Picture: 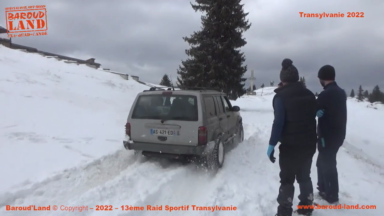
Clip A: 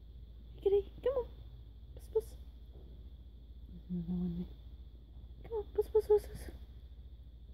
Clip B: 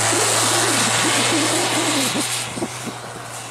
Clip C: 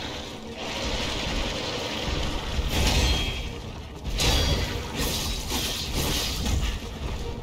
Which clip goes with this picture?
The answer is B